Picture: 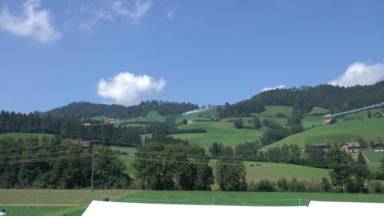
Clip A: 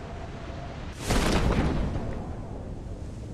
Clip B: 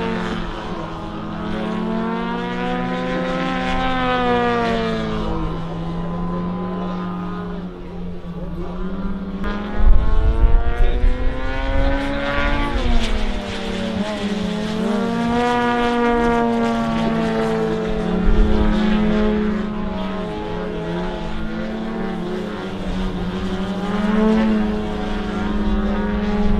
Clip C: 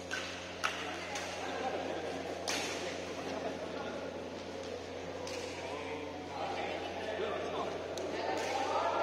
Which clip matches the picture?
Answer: B